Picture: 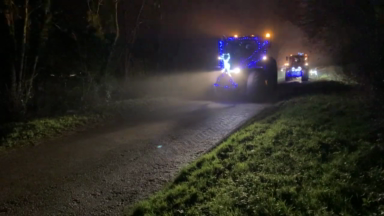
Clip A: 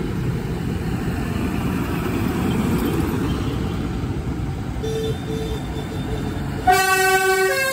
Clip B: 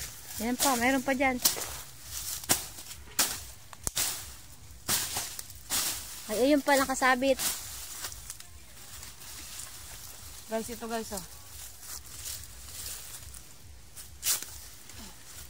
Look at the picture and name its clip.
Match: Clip A